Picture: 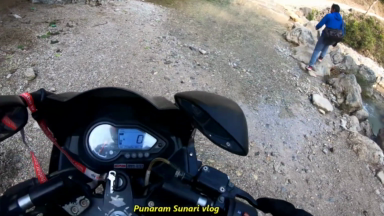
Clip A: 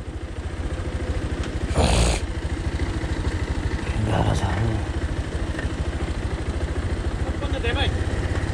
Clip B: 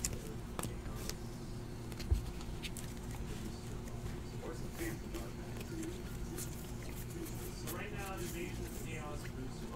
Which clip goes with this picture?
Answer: A